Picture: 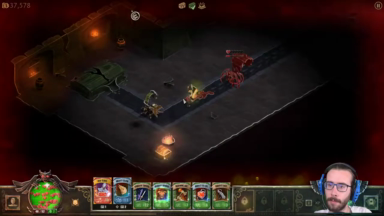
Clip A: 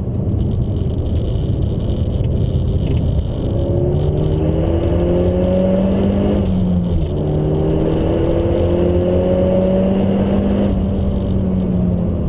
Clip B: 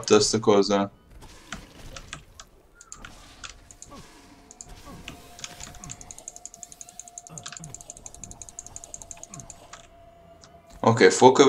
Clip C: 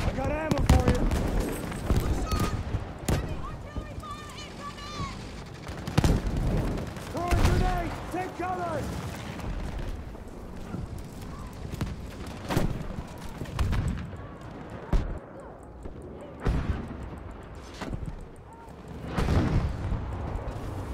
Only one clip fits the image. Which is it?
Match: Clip B